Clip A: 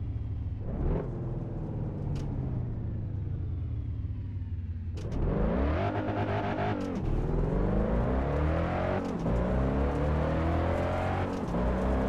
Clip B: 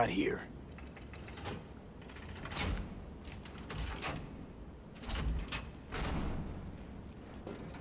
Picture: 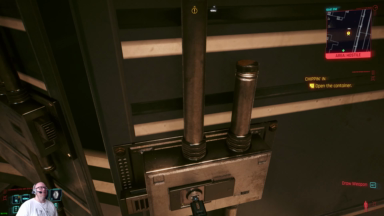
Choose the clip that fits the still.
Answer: B